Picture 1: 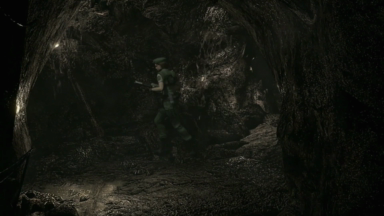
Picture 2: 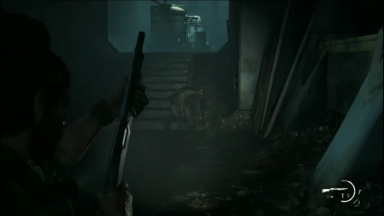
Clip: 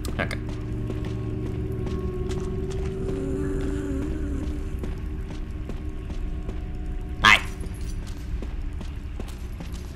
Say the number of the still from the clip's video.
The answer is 1